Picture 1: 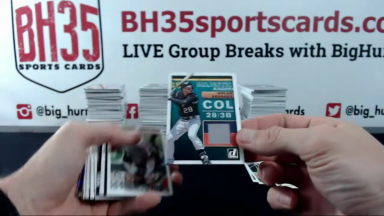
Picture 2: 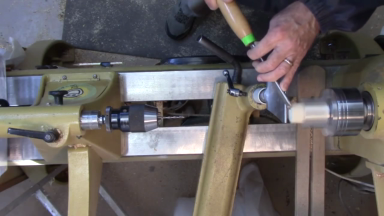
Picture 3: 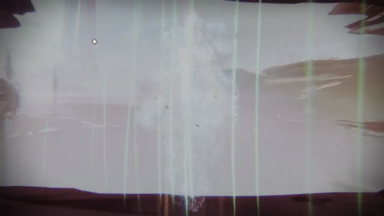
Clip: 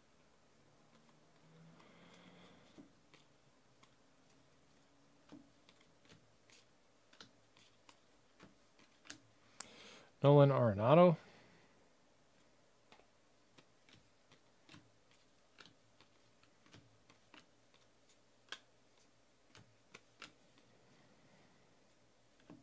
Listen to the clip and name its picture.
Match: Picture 1